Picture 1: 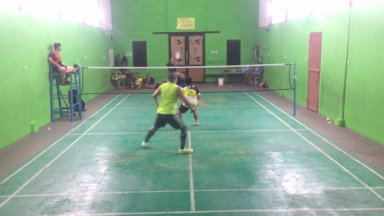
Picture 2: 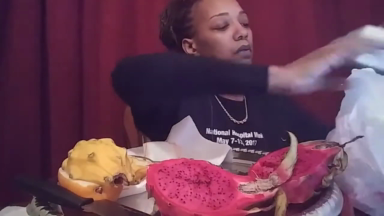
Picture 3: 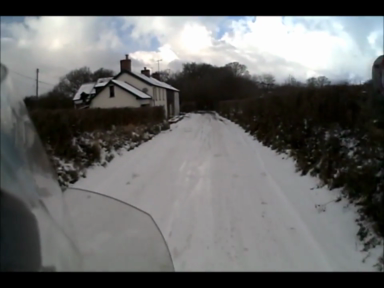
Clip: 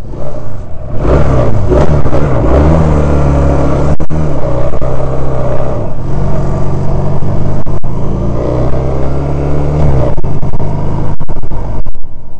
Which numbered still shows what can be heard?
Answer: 3